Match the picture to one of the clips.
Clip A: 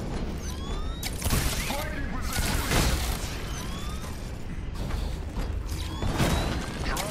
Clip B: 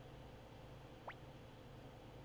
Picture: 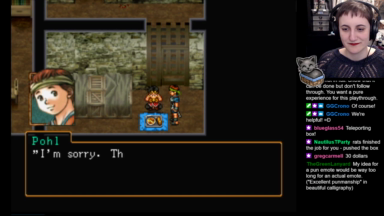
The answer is B